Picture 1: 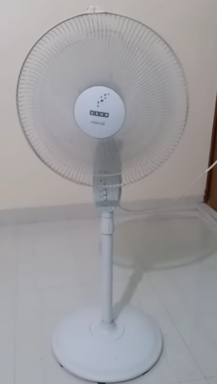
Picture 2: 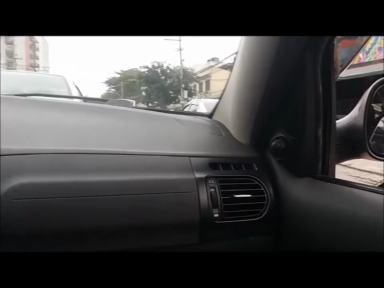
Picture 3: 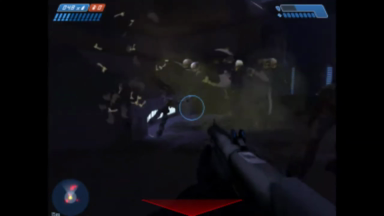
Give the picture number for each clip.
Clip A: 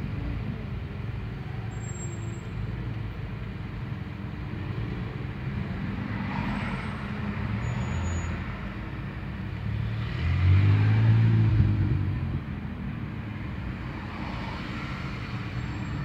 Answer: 2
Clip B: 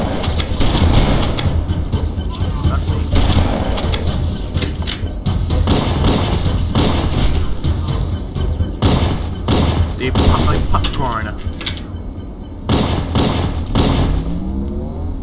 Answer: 3